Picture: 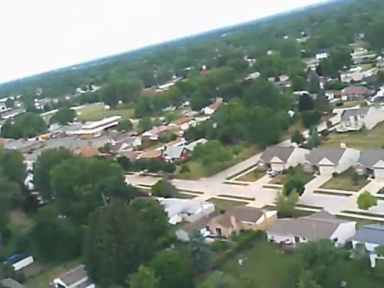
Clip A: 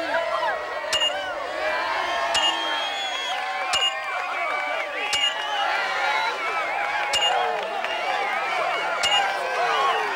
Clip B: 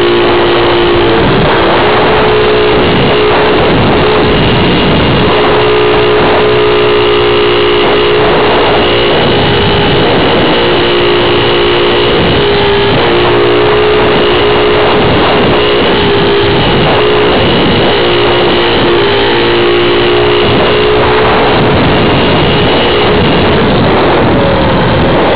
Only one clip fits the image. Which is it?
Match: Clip B